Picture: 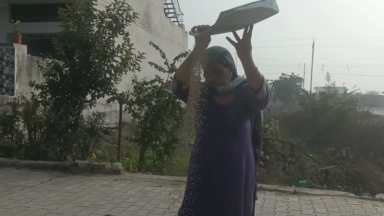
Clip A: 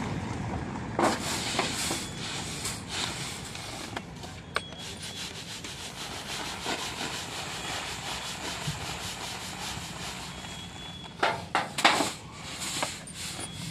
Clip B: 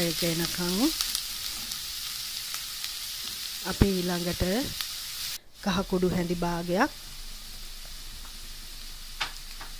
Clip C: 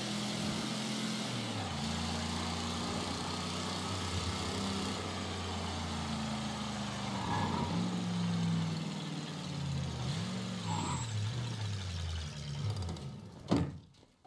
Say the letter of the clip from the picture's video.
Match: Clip A